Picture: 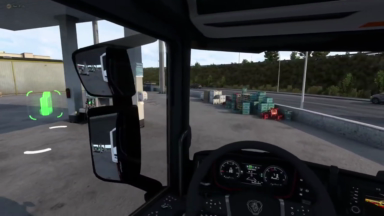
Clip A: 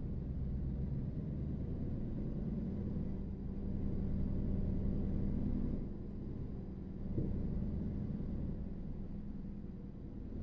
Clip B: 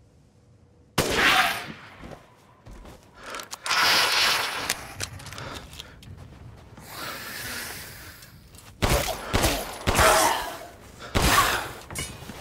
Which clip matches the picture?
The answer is A